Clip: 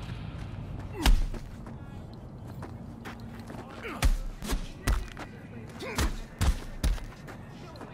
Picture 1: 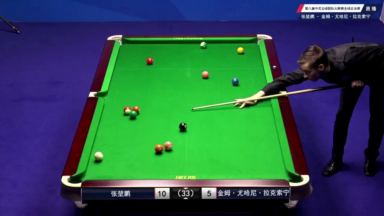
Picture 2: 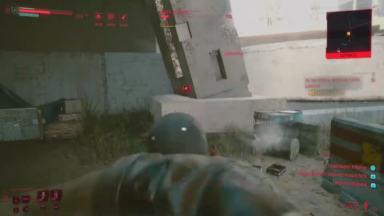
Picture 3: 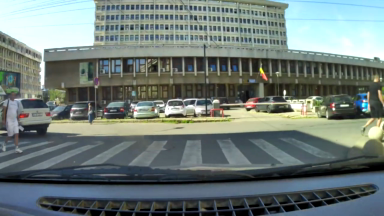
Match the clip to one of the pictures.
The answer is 2